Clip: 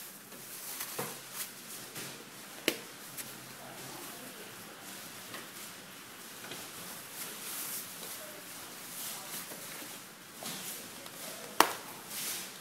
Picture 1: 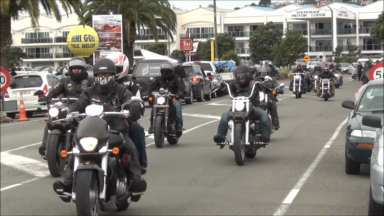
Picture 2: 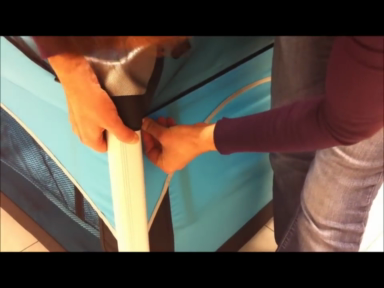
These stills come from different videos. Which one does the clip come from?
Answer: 2